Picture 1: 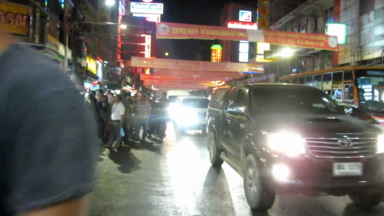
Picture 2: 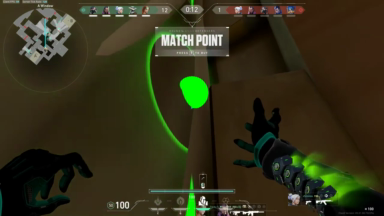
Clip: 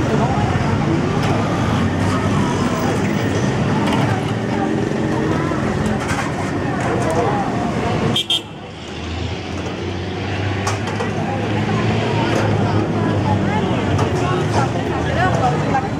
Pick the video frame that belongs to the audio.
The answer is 1